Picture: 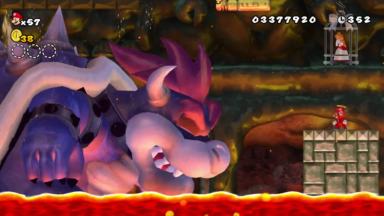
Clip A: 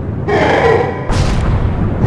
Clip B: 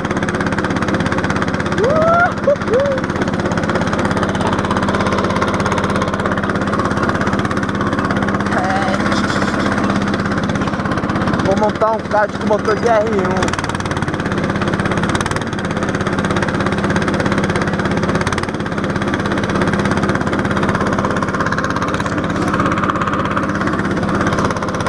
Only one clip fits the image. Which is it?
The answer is A